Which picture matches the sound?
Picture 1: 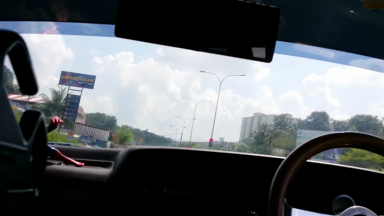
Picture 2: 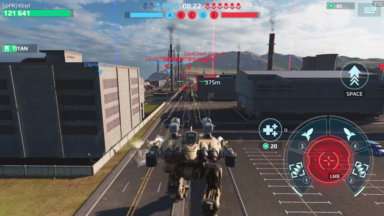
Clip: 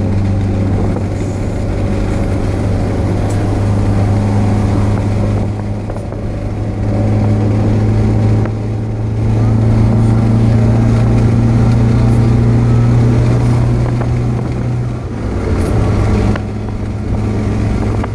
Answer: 1